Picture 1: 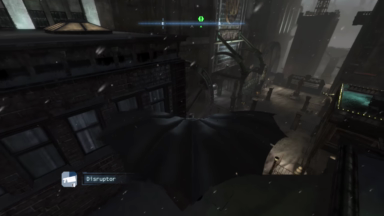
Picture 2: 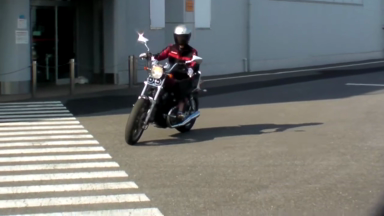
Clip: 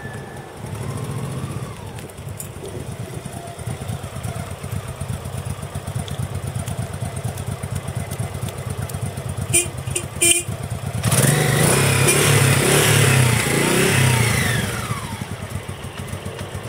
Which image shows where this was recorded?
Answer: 2